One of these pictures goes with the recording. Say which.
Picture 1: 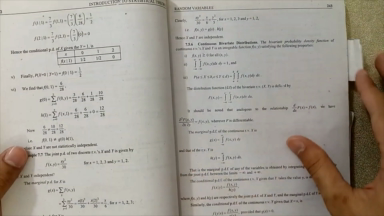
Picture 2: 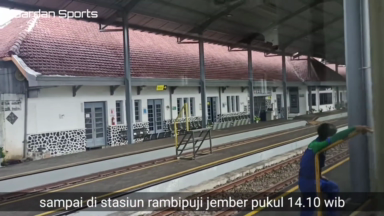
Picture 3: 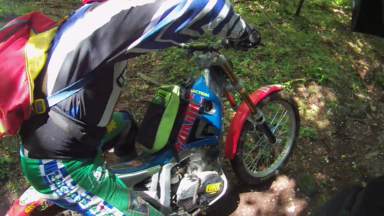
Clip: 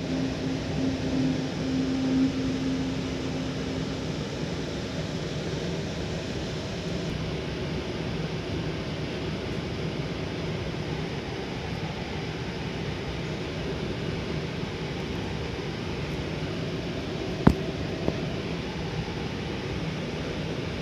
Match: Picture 2